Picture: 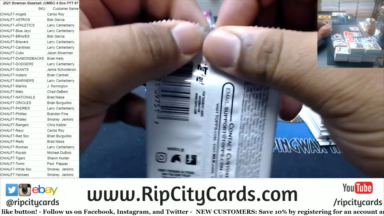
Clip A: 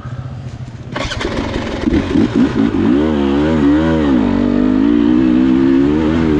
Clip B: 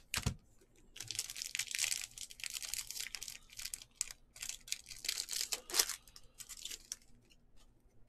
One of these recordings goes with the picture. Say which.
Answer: B